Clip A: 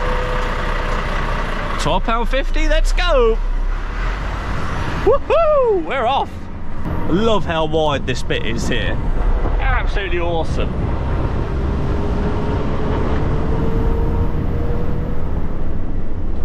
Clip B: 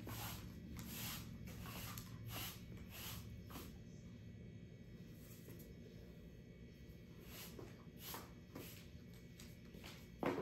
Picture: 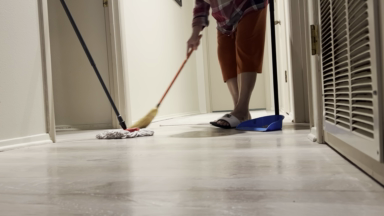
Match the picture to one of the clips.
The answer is B